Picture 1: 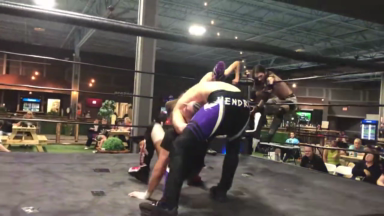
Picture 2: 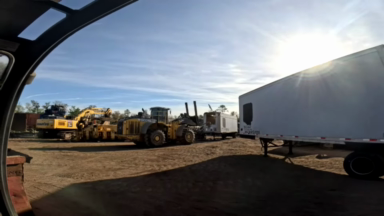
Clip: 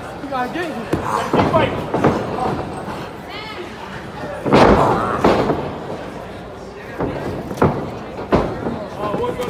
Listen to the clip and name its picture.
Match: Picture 1